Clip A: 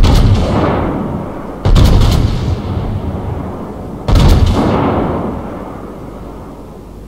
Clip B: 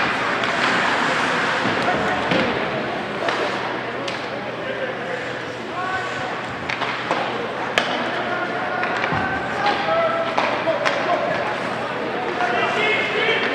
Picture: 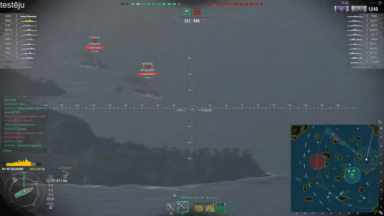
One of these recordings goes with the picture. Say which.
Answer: A